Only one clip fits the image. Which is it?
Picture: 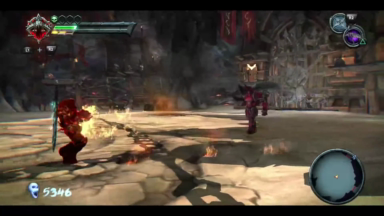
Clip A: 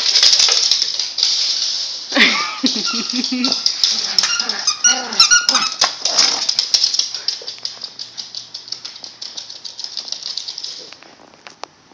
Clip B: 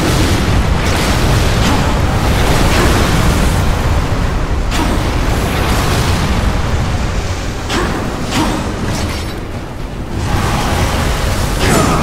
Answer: B